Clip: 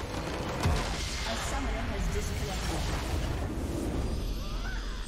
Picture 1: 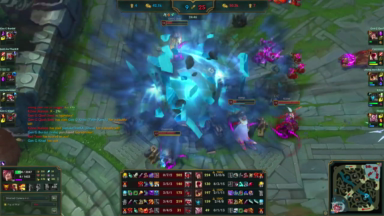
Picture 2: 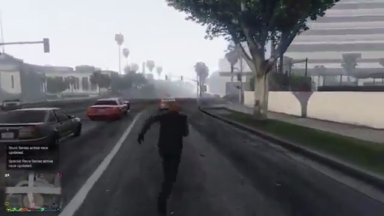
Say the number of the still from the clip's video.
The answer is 1